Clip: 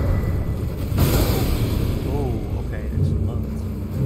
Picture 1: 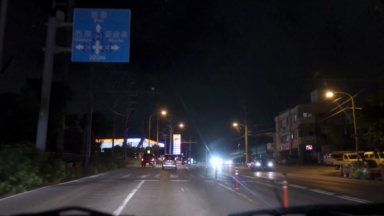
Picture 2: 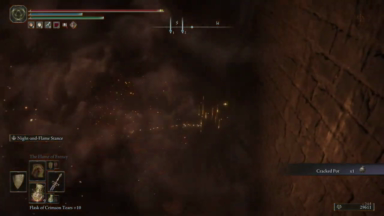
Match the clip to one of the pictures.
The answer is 2